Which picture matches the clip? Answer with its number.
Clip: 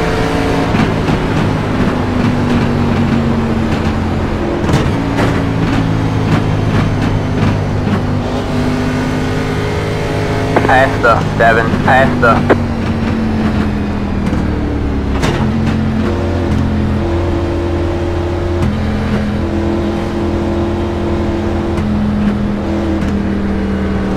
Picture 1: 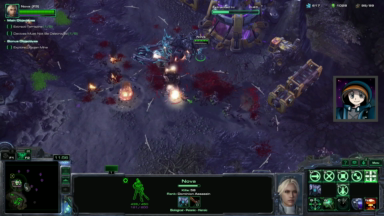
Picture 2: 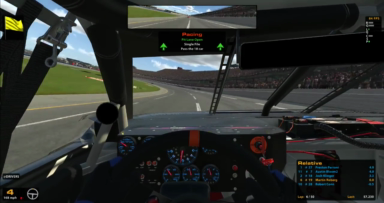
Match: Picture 2